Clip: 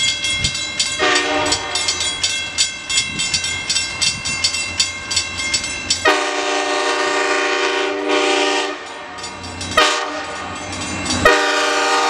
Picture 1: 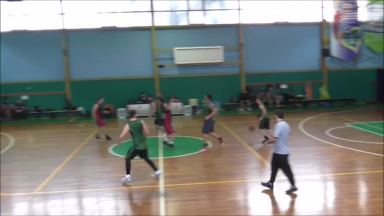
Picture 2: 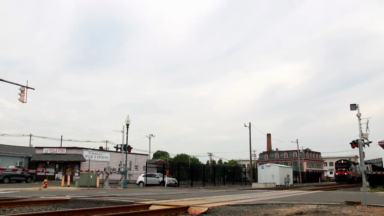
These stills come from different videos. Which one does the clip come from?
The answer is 2